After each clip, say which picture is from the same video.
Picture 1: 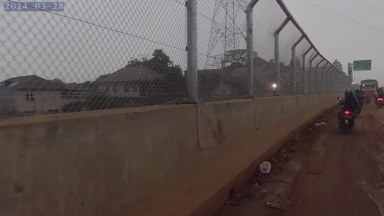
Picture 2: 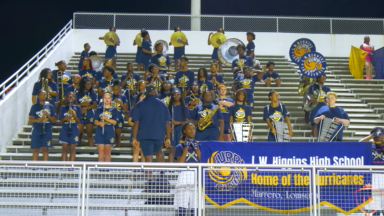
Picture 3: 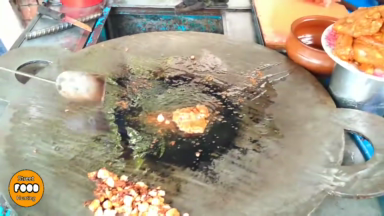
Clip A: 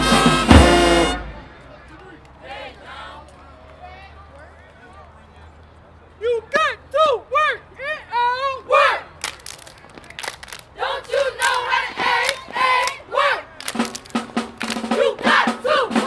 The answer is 2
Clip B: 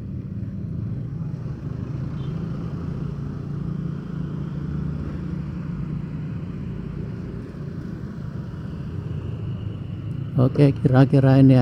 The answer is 1